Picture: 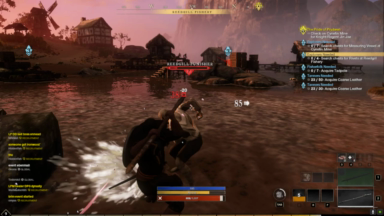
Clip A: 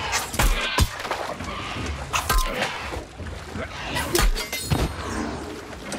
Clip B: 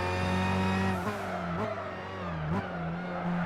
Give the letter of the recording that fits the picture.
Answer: A